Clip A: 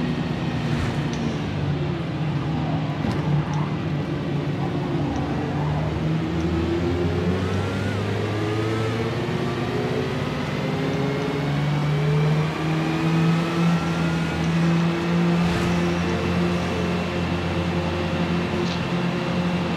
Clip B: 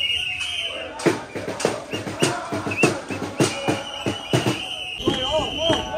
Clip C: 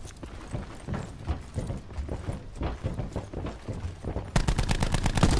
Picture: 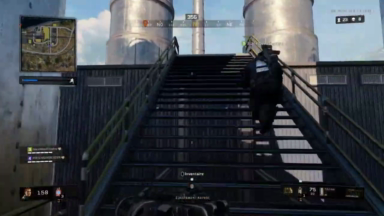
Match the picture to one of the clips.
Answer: C